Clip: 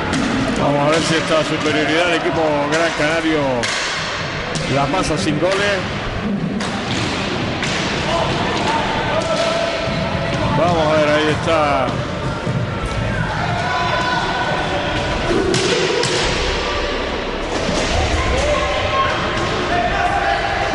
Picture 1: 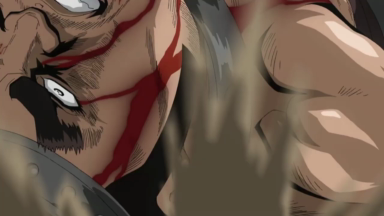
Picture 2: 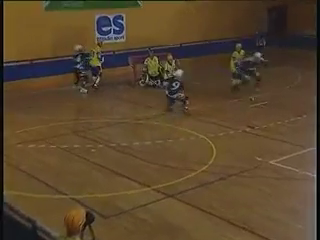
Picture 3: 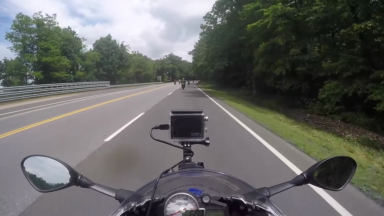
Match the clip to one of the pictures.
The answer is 2